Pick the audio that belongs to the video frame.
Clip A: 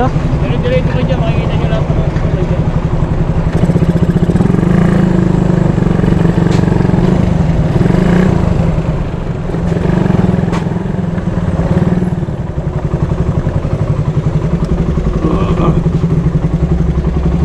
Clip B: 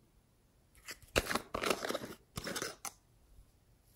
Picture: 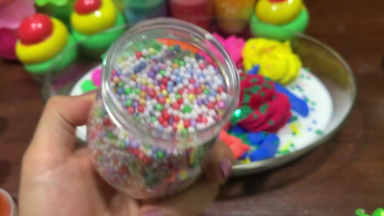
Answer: B